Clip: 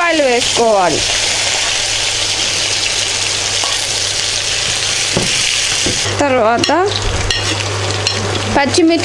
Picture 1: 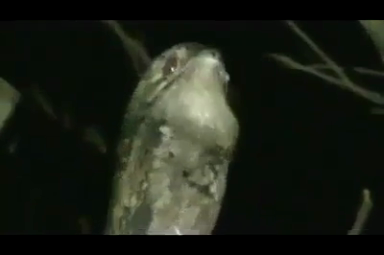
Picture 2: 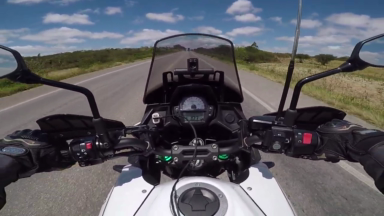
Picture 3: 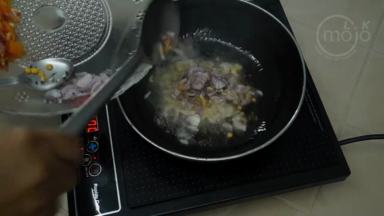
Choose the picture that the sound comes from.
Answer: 3